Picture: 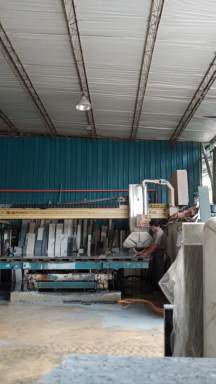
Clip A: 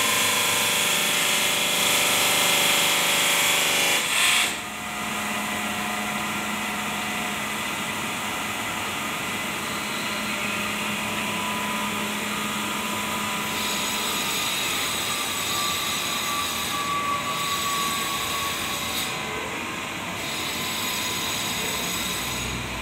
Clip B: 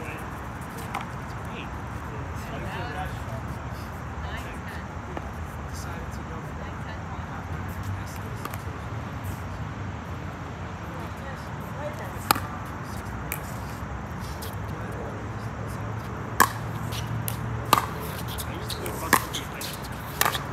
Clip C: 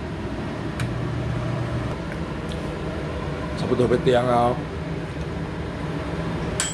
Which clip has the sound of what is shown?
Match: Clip A